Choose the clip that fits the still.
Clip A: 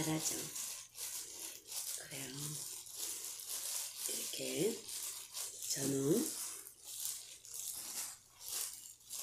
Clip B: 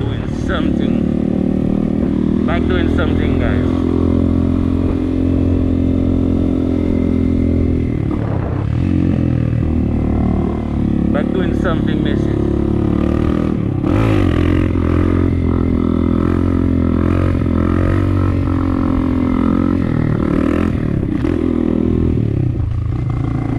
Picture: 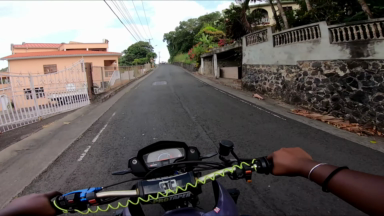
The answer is B